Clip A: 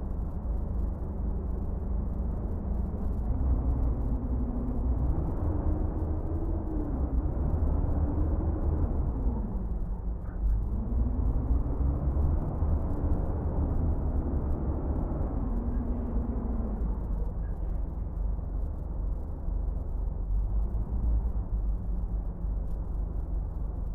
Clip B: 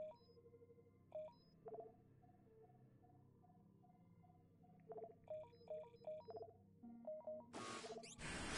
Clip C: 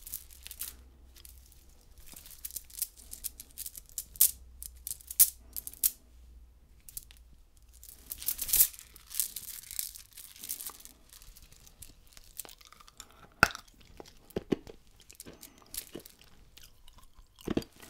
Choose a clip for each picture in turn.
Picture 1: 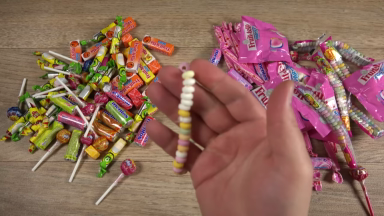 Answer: C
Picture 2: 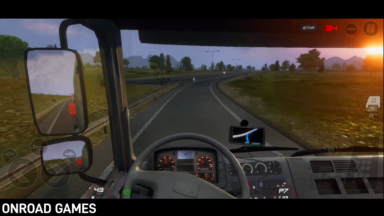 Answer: A